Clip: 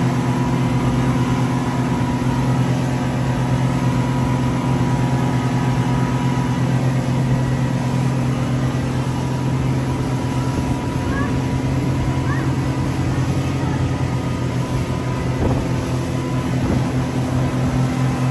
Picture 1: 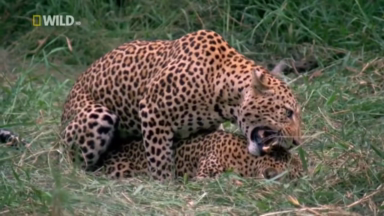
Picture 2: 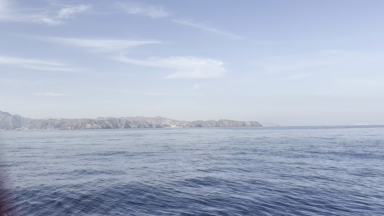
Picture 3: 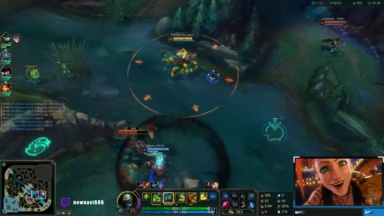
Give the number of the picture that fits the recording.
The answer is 2